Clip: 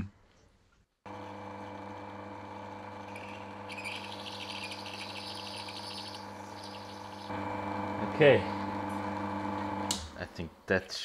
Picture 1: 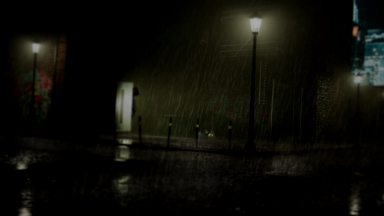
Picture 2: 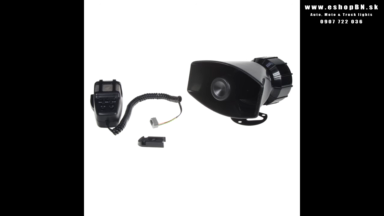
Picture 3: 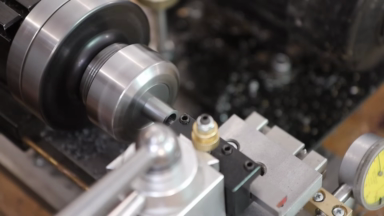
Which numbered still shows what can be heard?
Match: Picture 3